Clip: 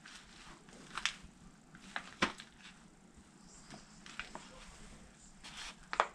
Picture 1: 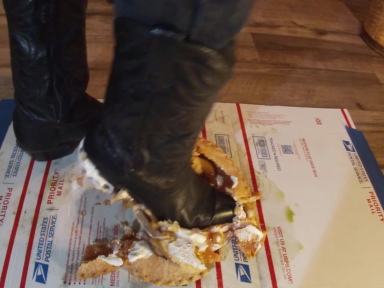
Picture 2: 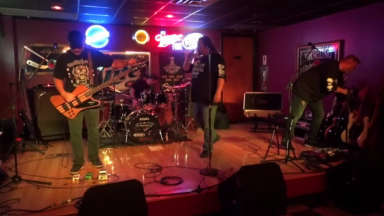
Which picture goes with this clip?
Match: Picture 1